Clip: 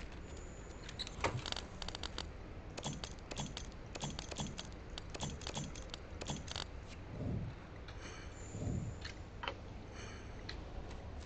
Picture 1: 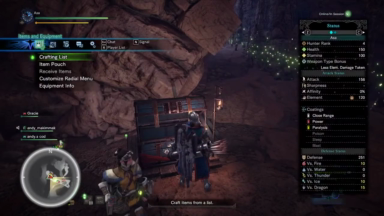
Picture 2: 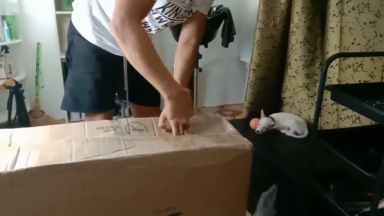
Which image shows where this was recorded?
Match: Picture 1